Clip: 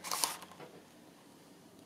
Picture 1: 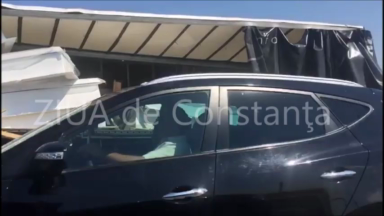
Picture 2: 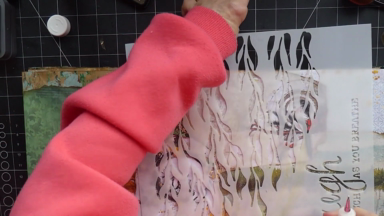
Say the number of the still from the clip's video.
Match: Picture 2